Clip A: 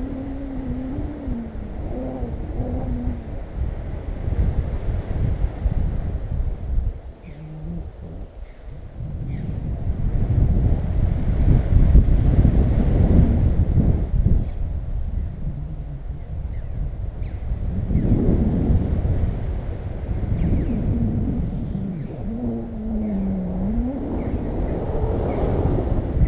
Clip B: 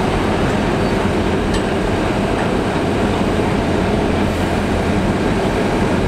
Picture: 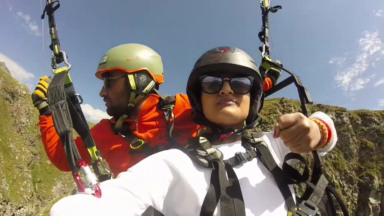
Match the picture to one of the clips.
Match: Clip A